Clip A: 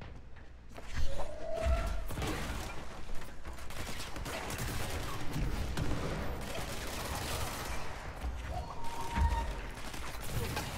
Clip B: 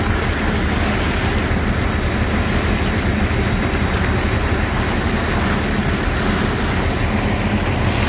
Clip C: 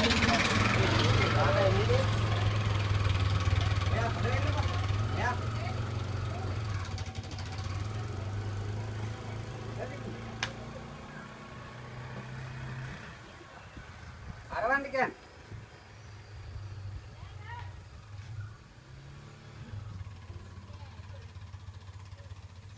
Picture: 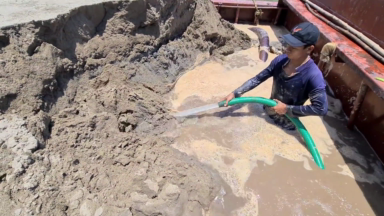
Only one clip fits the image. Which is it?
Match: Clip B